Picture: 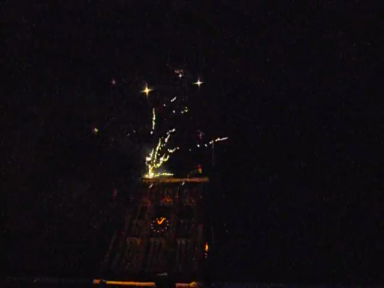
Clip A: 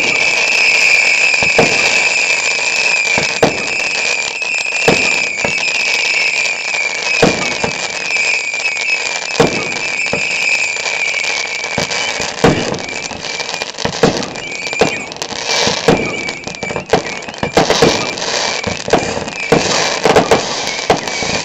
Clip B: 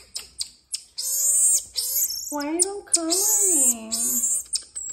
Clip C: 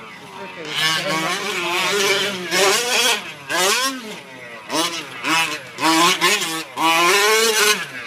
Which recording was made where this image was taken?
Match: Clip A